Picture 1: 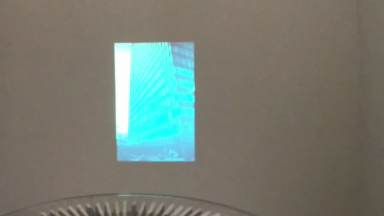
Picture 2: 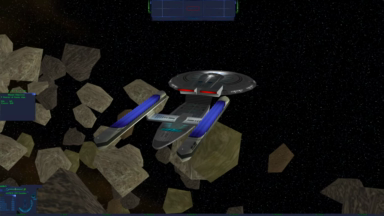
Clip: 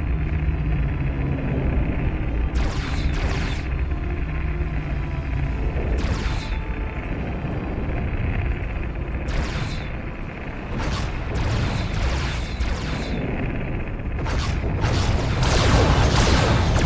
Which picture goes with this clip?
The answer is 2